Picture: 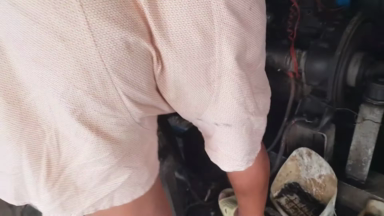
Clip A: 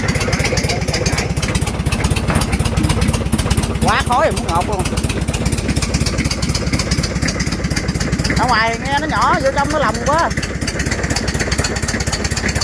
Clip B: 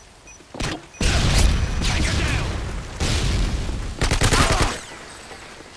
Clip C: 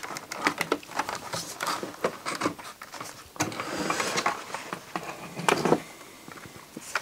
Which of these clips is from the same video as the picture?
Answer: A